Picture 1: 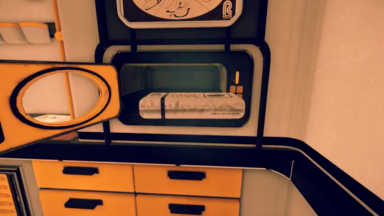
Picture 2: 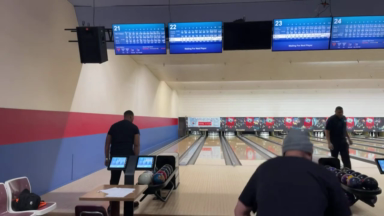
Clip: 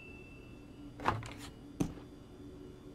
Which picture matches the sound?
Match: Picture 1